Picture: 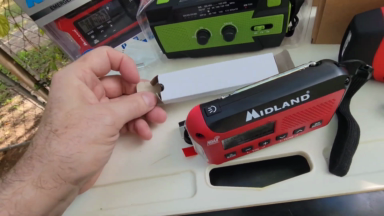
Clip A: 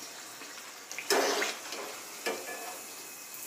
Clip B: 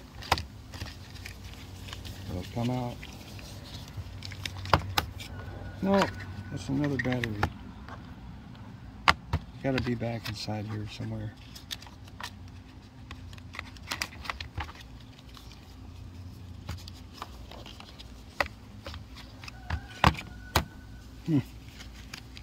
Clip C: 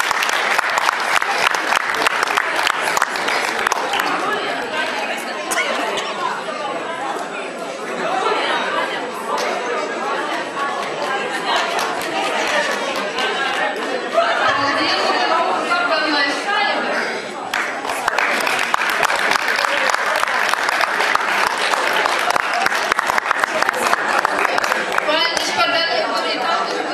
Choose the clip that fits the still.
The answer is B